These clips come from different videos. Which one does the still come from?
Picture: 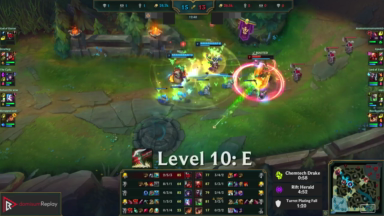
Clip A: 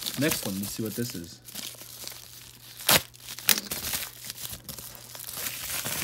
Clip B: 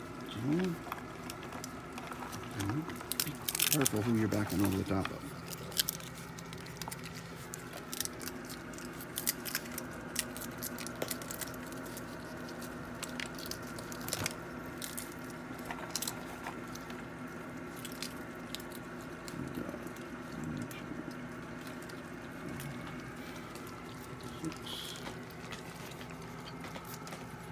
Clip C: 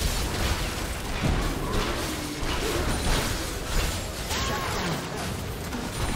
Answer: C